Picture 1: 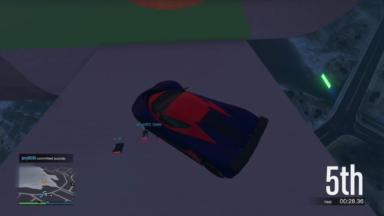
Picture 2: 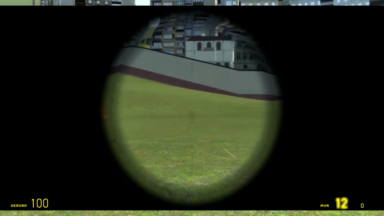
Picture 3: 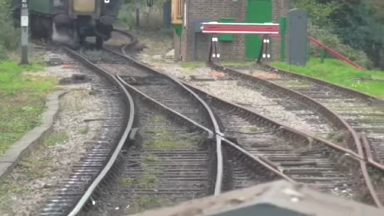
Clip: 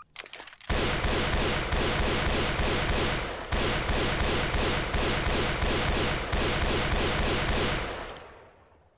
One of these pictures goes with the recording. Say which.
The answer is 2